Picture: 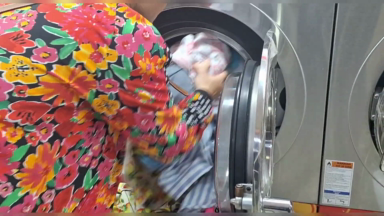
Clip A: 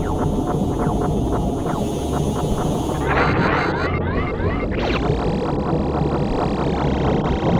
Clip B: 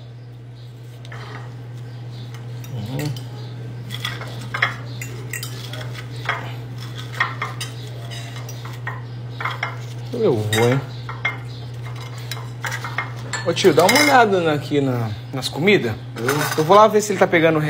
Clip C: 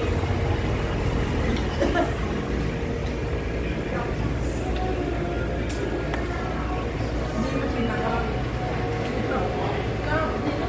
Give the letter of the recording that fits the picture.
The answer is C